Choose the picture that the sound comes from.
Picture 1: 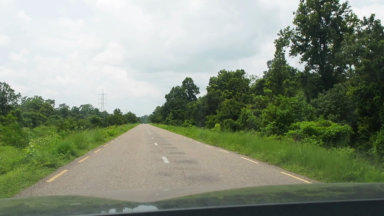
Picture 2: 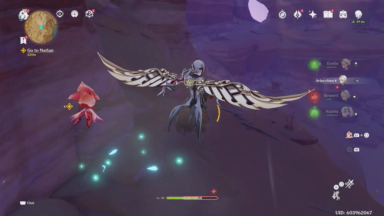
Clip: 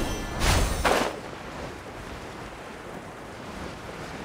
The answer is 2